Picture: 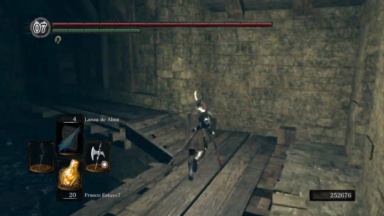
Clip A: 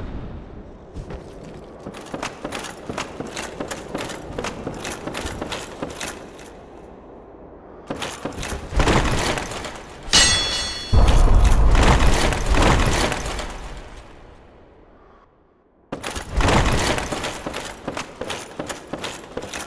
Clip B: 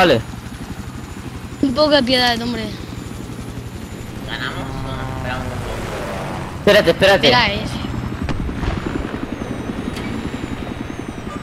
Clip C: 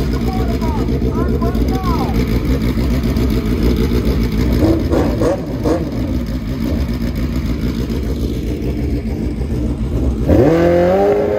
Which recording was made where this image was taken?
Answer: A